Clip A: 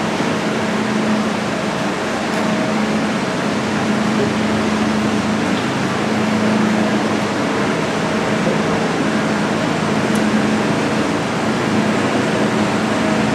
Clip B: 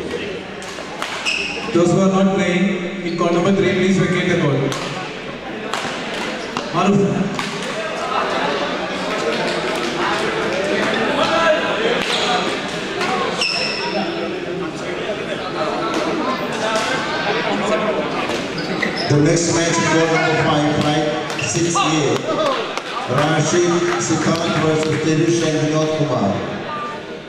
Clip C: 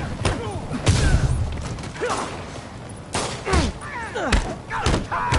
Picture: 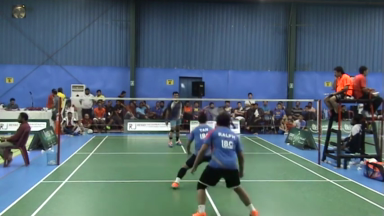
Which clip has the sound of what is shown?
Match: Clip B